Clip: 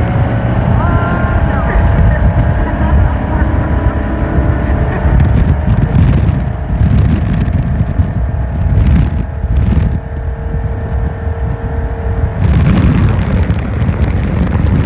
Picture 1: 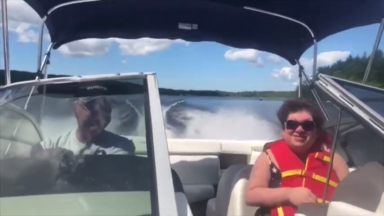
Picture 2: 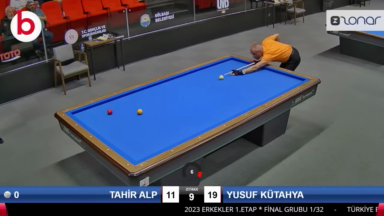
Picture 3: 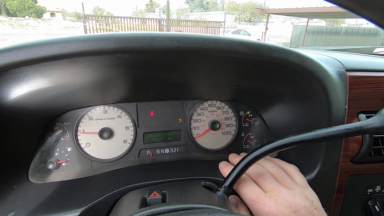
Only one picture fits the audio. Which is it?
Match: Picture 1